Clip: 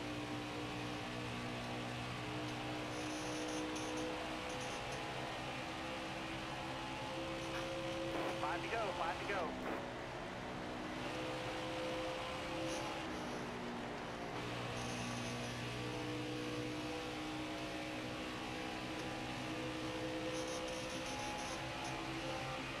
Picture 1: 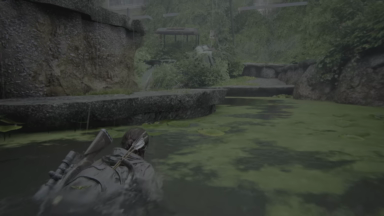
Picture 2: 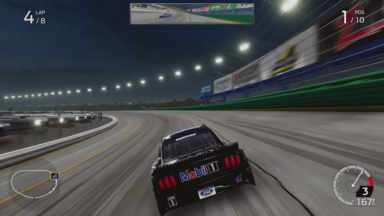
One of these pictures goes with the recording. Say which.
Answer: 2